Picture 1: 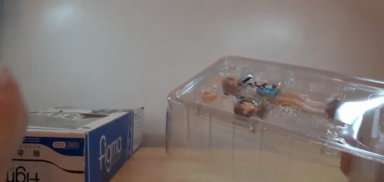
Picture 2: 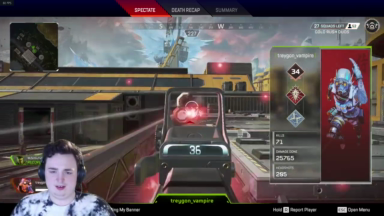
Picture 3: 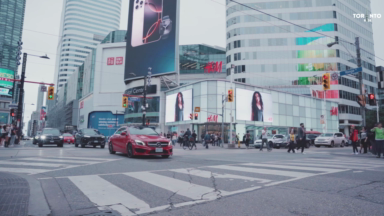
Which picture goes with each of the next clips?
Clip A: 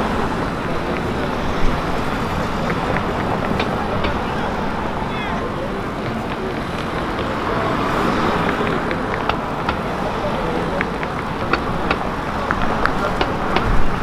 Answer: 3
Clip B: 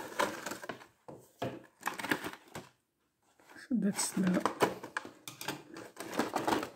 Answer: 1